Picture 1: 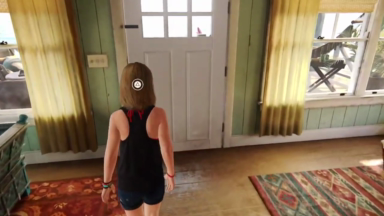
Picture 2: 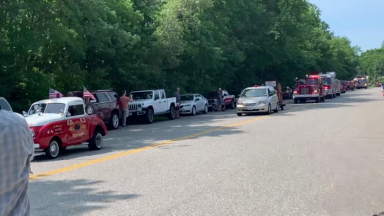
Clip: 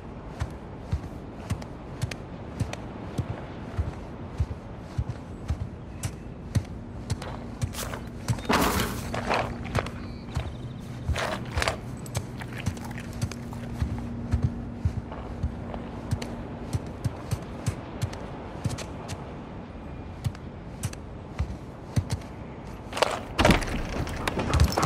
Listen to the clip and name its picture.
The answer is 1